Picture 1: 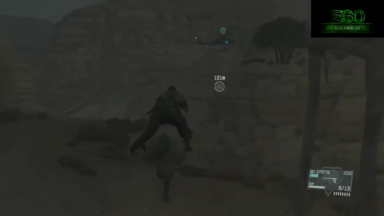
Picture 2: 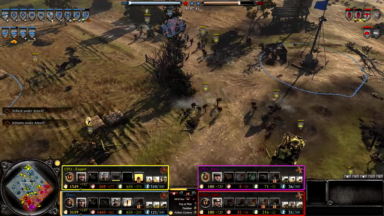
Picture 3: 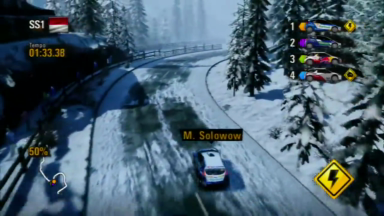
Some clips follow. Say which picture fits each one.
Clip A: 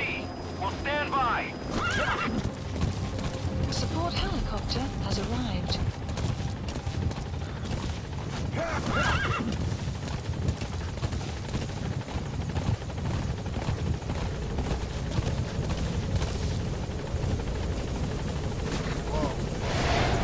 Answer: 1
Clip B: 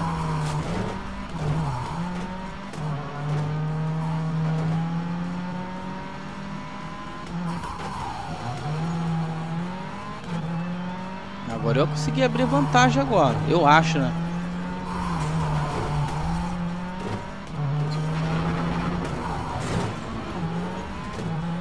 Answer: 3